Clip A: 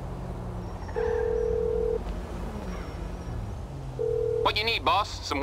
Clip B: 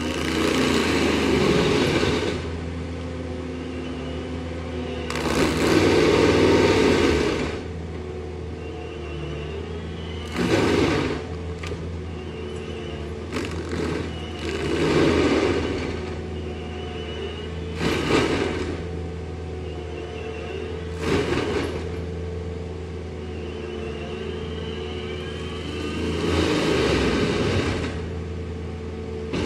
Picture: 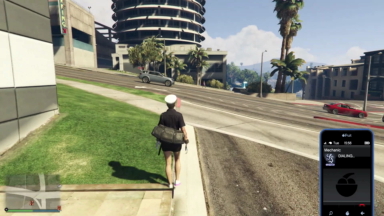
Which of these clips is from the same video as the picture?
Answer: A